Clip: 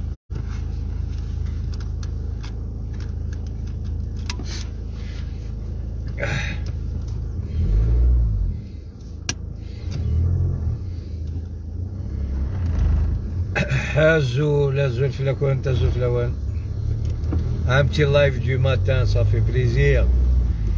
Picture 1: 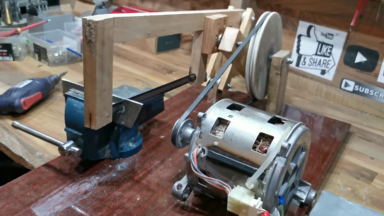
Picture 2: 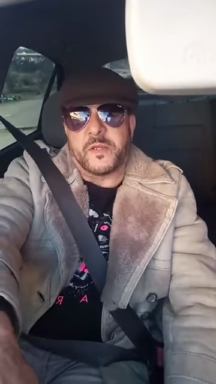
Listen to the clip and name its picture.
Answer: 2